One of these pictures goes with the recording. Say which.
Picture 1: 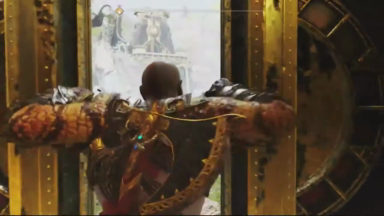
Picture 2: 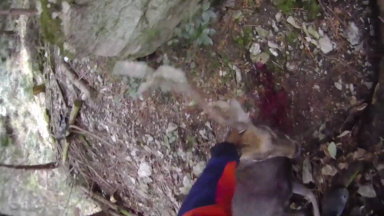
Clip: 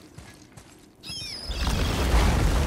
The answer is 1